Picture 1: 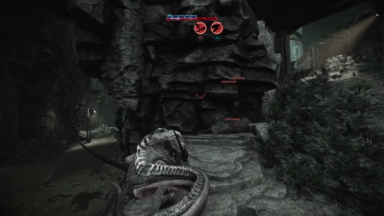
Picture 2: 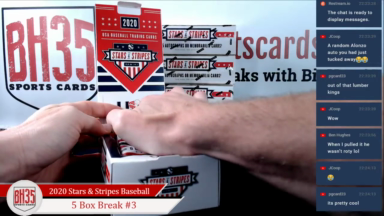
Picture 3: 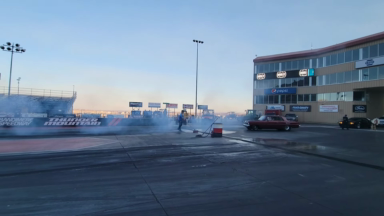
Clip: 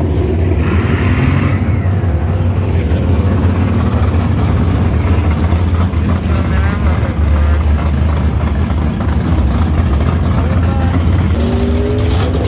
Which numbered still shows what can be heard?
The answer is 3